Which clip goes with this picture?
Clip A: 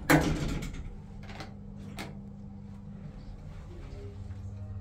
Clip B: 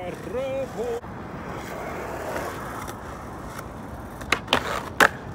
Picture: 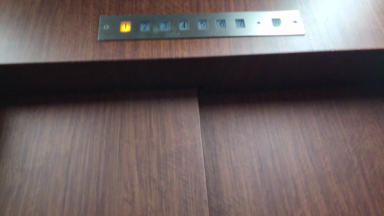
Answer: A